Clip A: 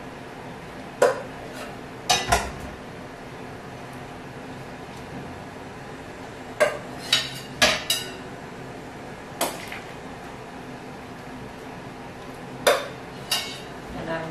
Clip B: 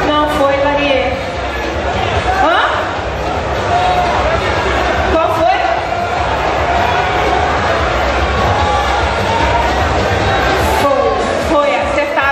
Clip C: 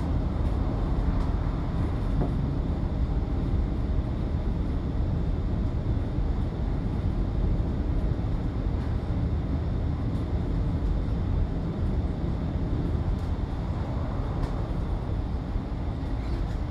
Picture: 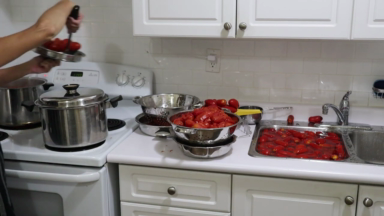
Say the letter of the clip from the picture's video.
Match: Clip A